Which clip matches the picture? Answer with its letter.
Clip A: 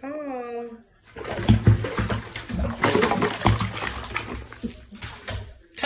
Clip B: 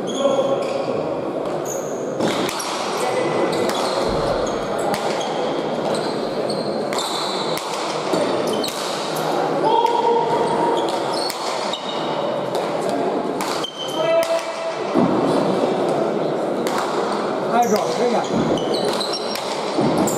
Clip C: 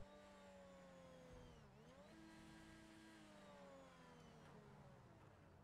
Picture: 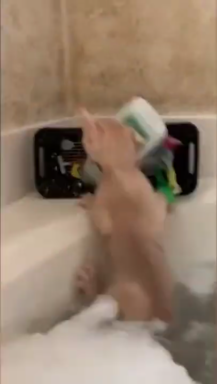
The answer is A